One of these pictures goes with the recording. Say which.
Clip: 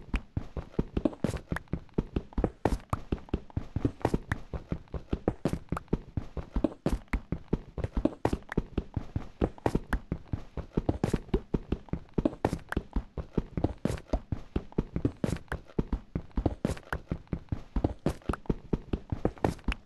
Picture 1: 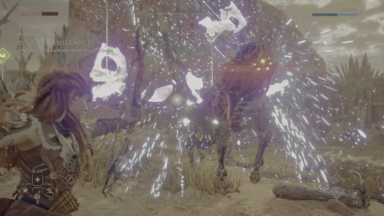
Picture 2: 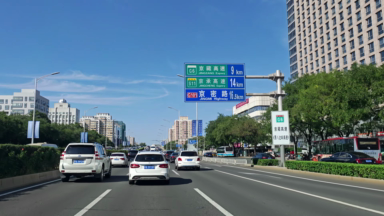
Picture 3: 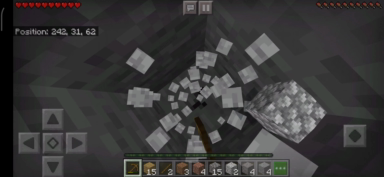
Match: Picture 3